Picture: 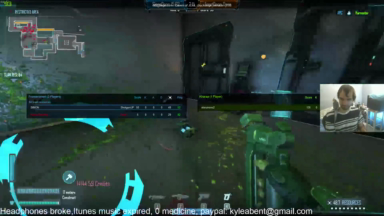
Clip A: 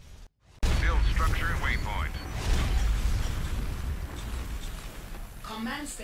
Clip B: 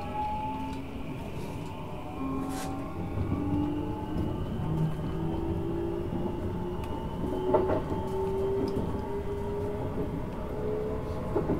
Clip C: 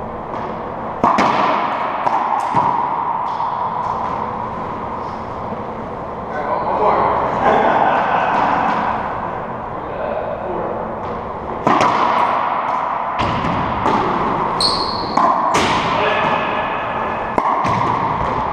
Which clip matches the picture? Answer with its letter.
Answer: A